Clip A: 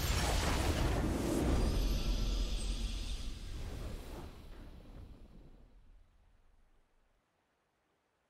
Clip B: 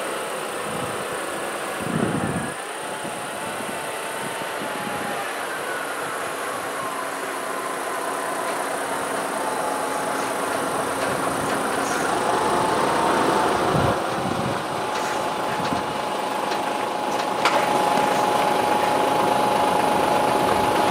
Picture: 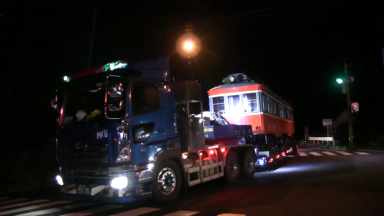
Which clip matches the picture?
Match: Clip B